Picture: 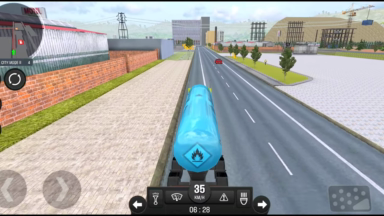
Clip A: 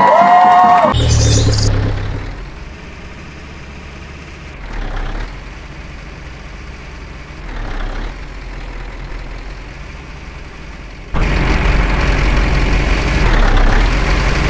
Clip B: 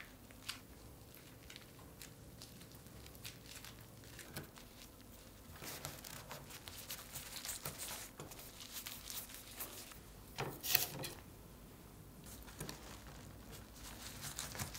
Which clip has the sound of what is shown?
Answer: A